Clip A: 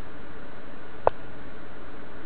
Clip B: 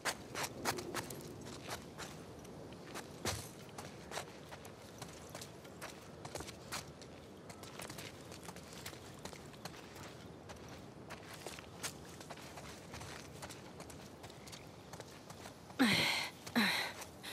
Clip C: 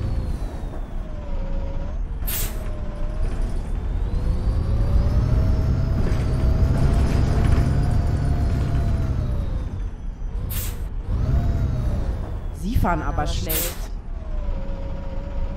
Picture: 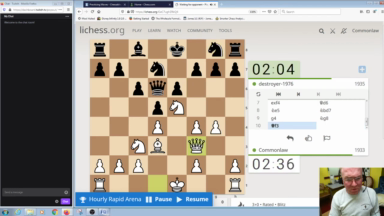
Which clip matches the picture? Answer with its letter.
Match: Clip A